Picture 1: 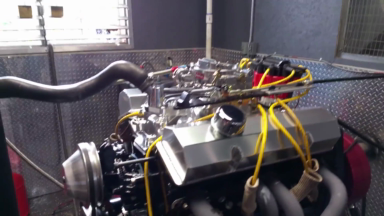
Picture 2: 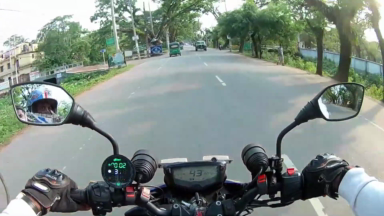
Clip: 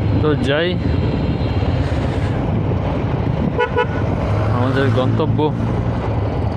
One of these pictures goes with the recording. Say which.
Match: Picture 2